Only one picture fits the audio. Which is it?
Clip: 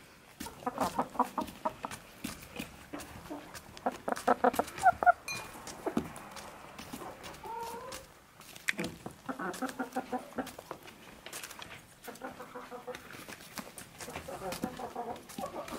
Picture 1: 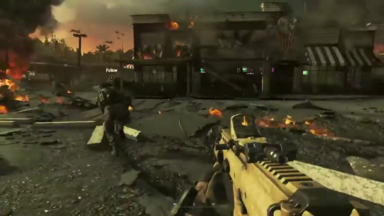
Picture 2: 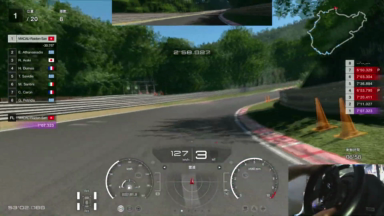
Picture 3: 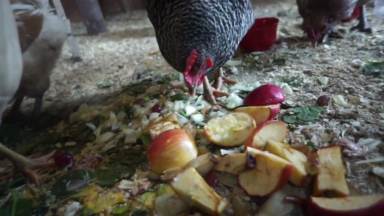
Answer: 3